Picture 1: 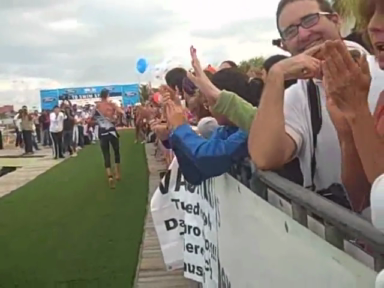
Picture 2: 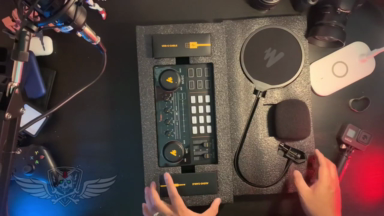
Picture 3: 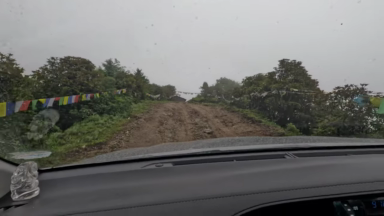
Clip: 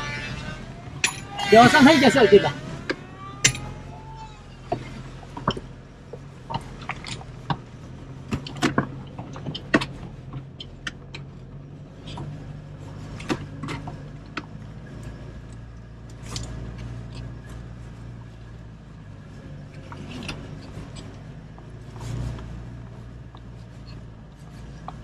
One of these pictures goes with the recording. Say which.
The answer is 3